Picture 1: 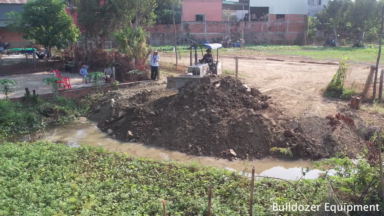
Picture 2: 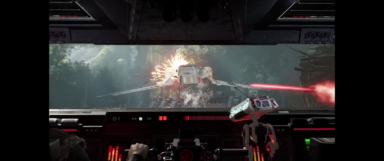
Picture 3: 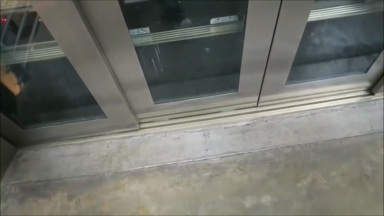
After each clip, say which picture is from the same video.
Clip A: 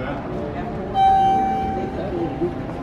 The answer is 3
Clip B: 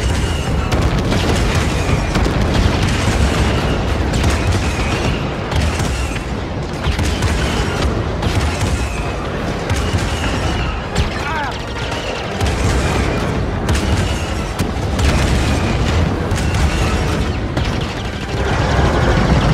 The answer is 2